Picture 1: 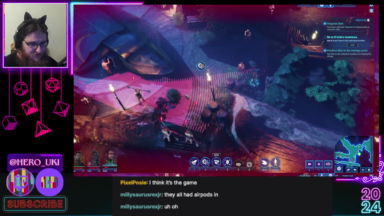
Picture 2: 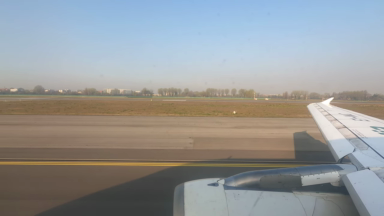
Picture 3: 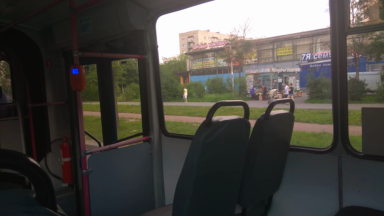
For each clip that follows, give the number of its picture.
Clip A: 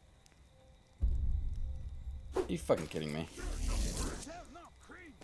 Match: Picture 1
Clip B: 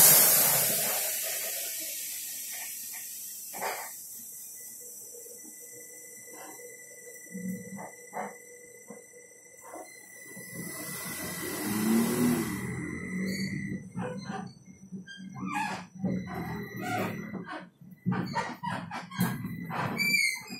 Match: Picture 3